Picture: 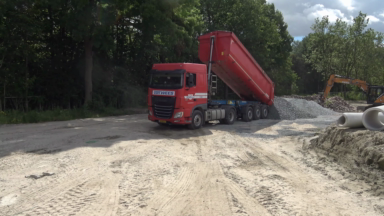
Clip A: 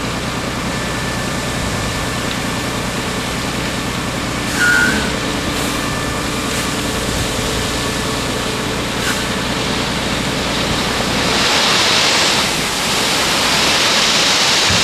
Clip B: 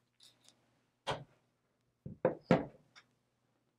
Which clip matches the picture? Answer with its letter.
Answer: A